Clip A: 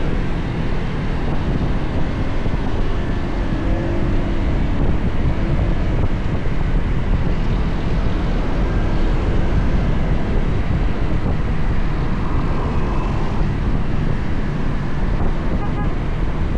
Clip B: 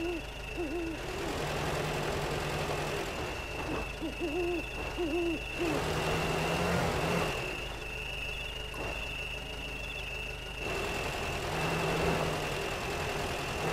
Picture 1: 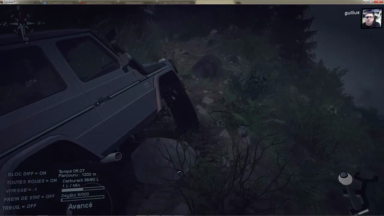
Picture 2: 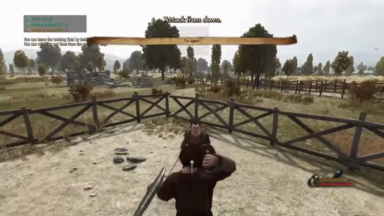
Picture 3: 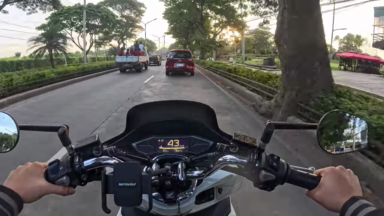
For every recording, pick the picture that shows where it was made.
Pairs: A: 3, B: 1